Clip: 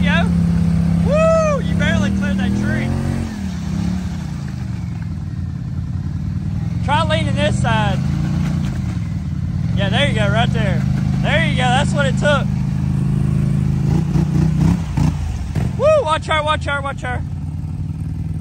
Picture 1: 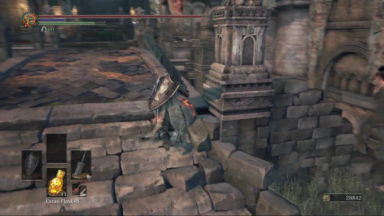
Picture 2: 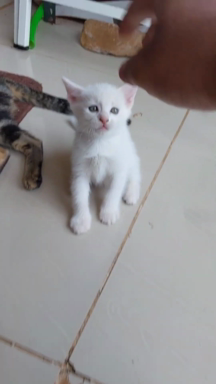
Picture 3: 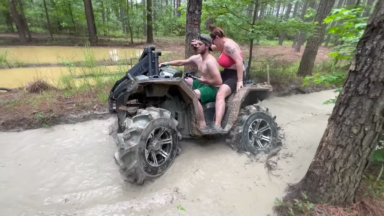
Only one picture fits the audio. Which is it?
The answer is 3